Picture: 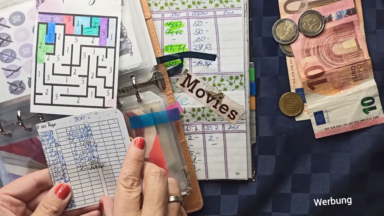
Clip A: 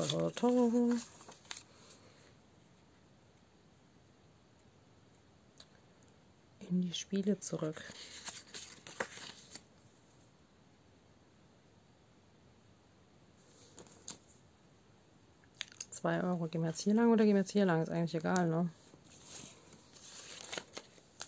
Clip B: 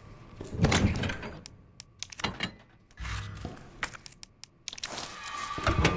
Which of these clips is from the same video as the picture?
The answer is A